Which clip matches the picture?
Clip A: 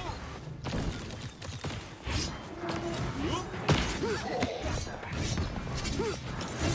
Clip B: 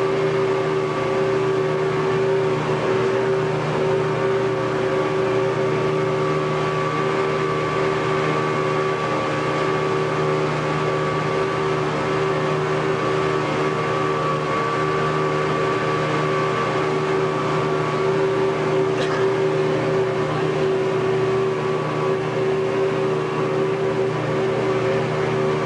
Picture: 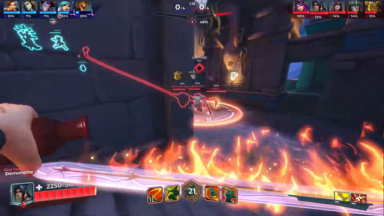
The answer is A